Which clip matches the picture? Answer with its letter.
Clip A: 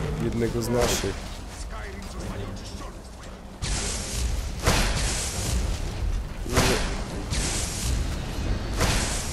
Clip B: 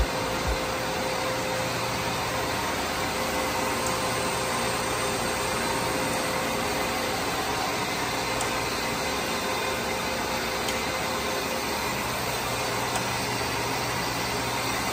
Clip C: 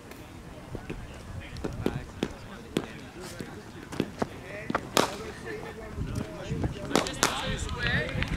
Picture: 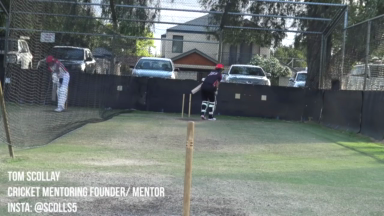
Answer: C